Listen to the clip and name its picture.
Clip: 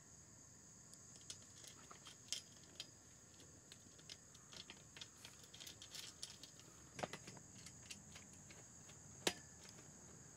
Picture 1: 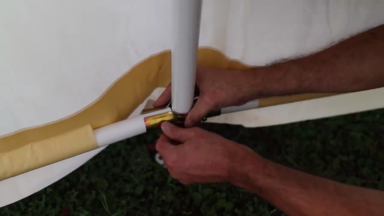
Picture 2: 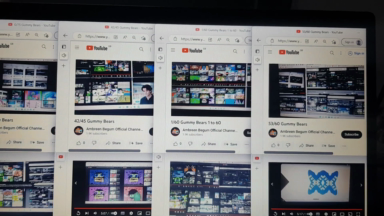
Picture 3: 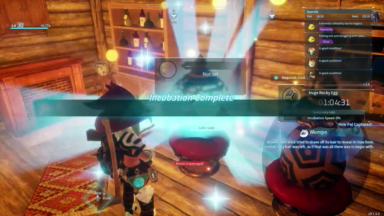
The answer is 1